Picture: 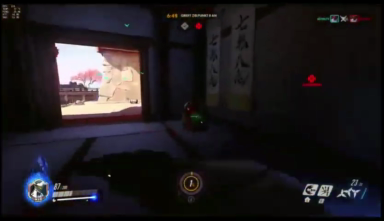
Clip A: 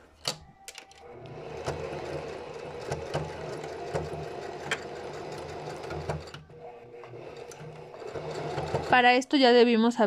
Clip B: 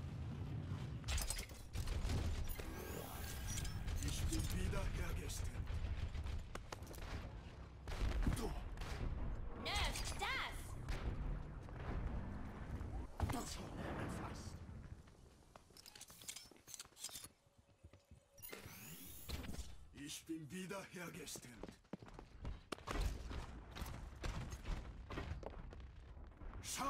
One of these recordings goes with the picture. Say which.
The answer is B